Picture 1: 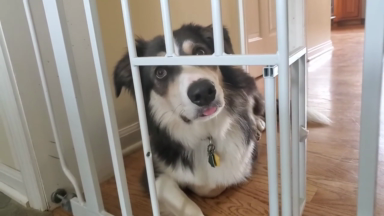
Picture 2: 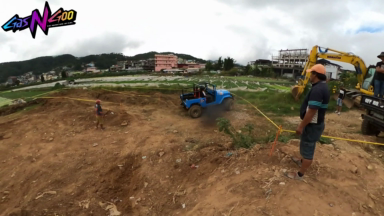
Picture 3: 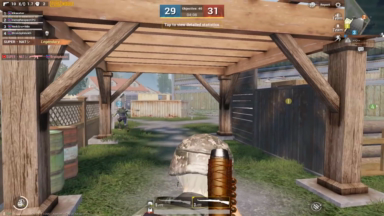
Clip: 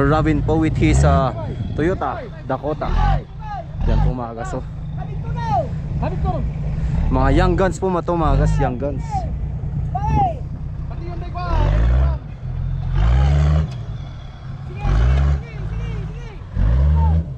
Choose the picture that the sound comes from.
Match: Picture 2